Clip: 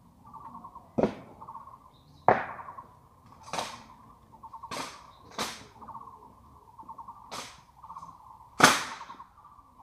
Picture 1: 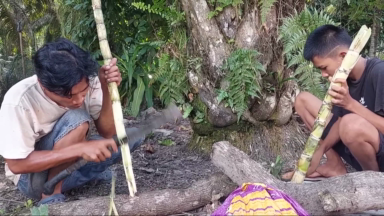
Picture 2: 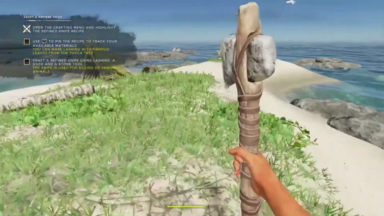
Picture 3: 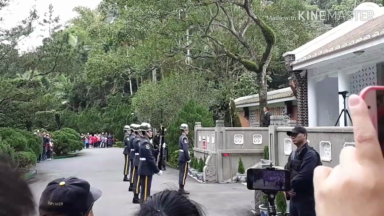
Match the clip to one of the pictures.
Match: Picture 3